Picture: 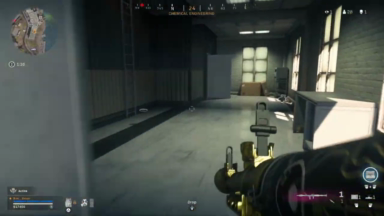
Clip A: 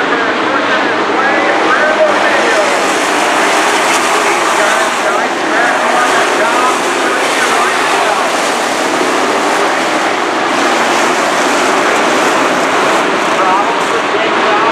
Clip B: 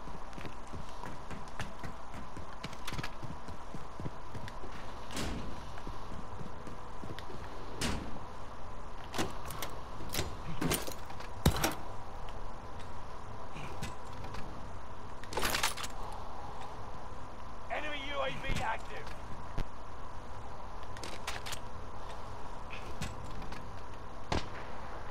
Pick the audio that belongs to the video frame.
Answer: B